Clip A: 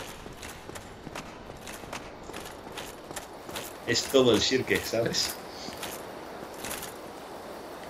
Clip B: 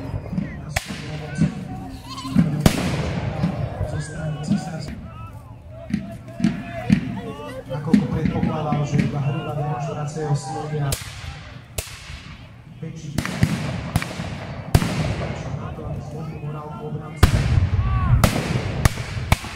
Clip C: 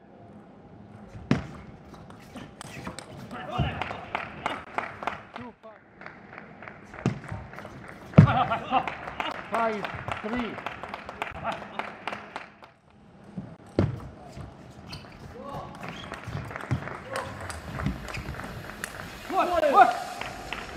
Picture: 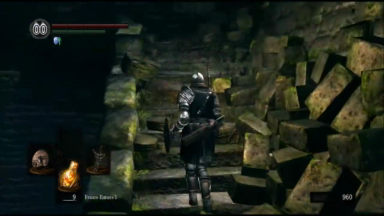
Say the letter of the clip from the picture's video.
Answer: A